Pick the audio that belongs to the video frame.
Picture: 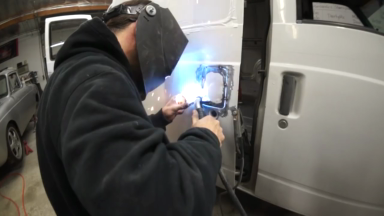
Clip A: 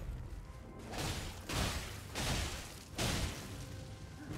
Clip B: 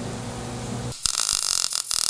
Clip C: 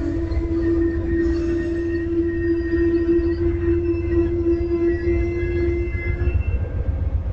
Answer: B